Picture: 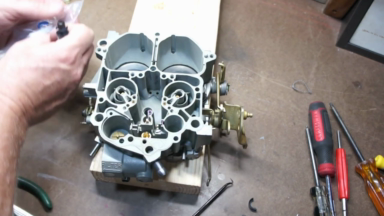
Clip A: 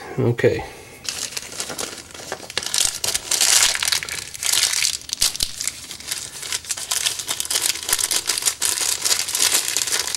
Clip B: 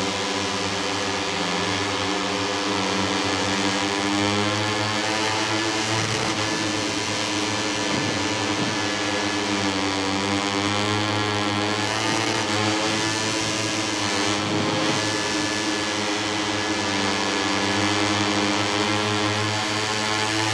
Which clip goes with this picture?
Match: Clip A